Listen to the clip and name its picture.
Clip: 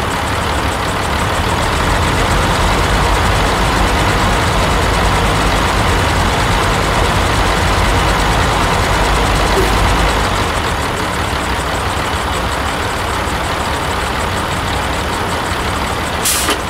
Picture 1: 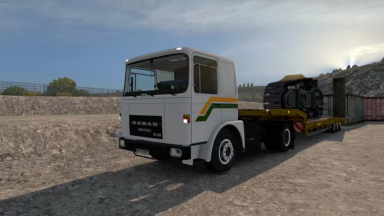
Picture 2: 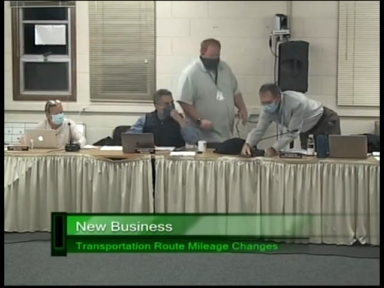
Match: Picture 1